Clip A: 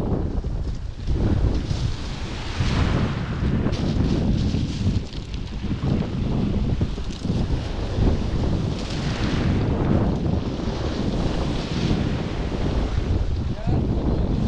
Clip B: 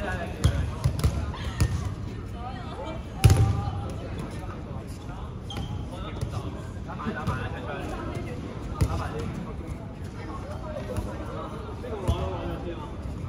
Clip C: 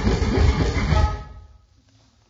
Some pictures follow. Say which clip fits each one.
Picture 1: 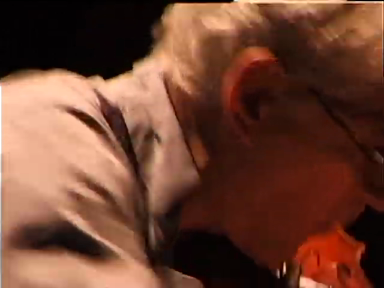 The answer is C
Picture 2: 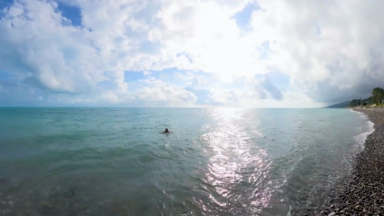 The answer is A